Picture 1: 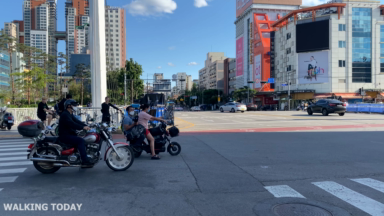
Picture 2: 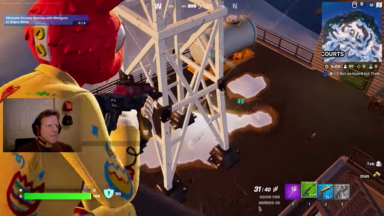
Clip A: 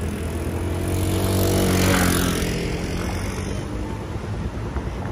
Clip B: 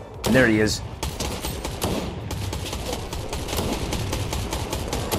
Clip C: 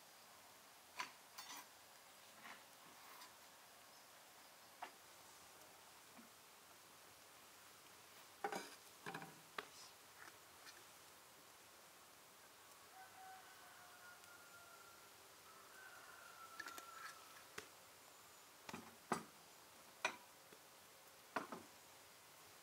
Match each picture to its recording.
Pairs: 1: A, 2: B